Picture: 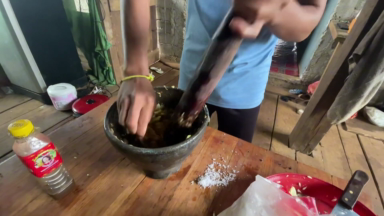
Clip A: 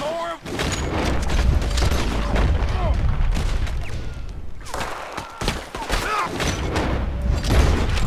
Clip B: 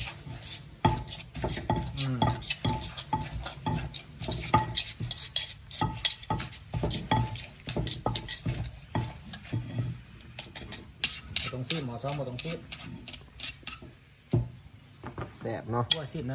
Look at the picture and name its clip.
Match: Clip B